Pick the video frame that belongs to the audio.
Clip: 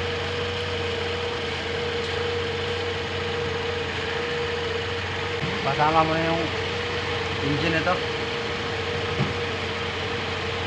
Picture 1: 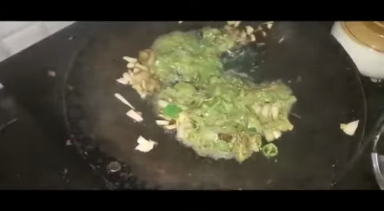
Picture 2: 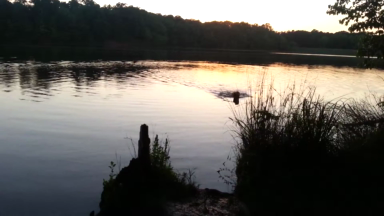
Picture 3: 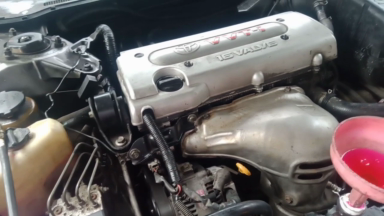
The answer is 3